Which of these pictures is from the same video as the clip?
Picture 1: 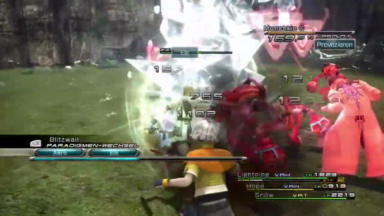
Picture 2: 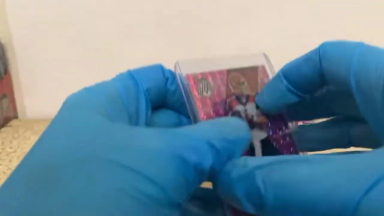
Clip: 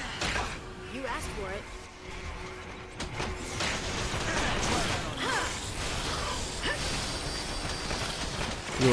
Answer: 1